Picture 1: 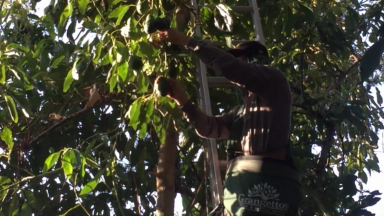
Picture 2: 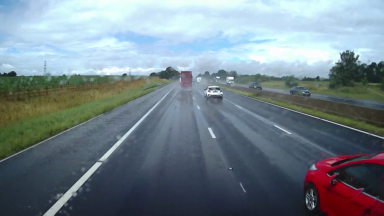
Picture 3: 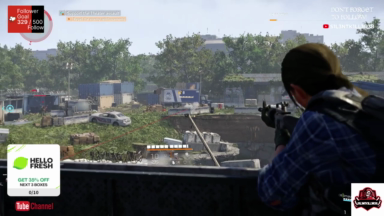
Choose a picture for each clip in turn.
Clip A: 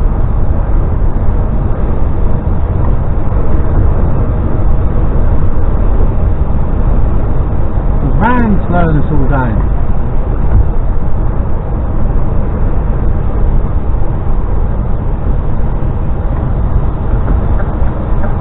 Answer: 2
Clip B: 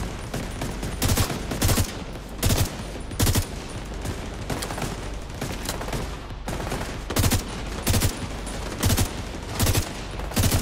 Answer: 3